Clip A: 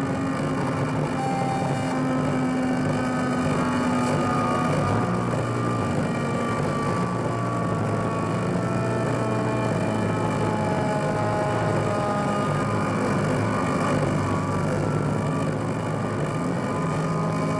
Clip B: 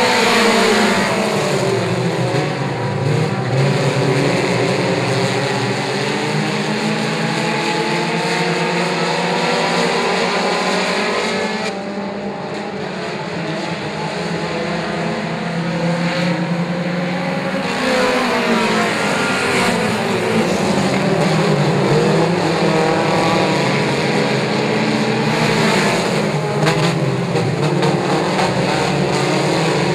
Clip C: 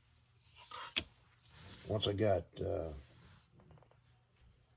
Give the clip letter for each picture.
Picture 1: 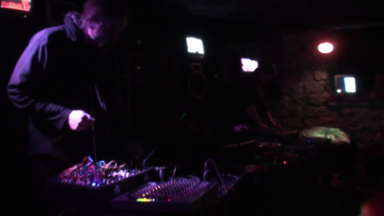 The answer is A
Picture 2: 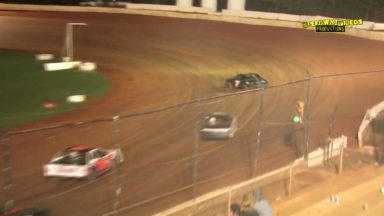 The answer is B